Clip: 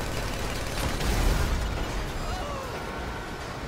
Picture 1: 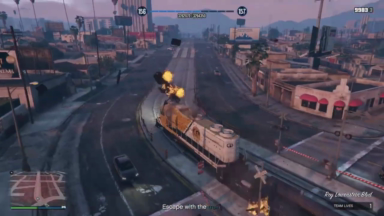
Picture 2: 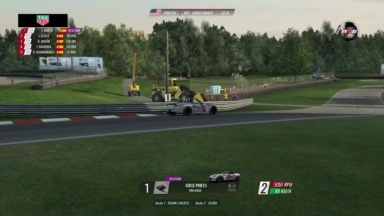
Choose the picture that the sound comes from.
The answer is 1